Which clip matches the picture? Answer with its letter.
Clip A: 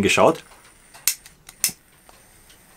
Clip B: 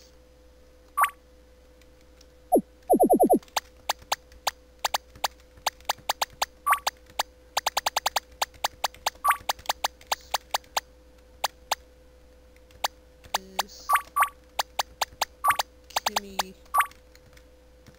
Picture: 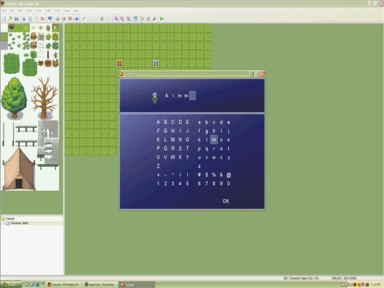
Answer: B